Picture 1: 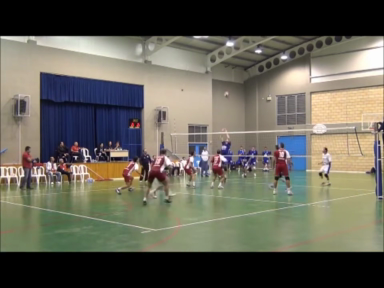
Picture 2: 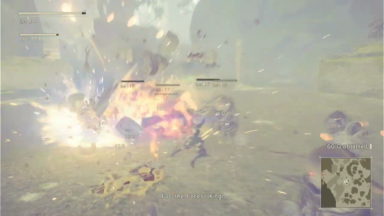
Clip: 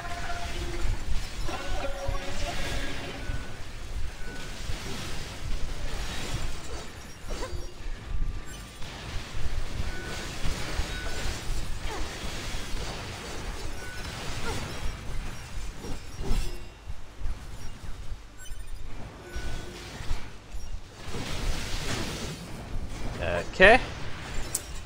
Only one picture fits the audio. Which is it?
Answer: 2